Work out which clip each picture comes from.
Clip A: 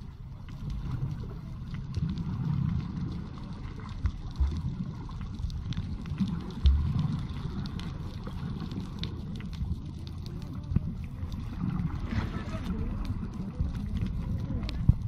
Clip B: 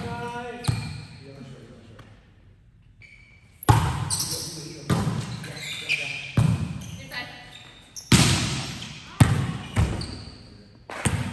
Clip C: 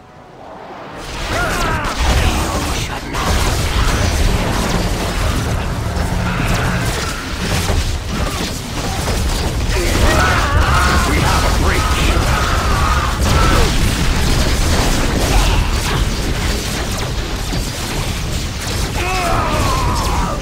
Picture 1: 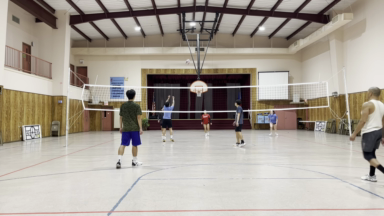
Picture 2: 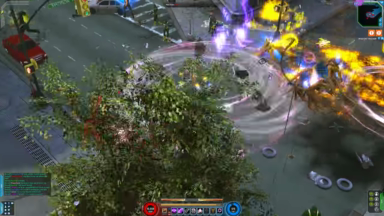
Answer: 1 B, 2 C